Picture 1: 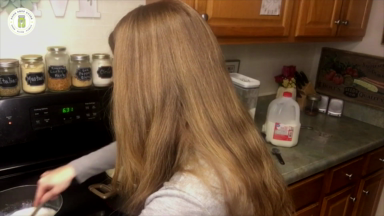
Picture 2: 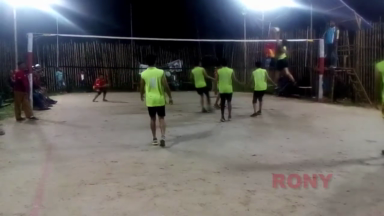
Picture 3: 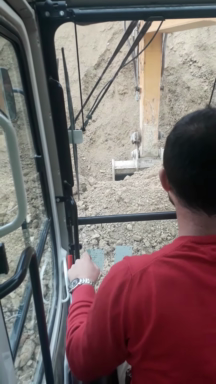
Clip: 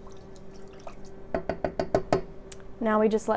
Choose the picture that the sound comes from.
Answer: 1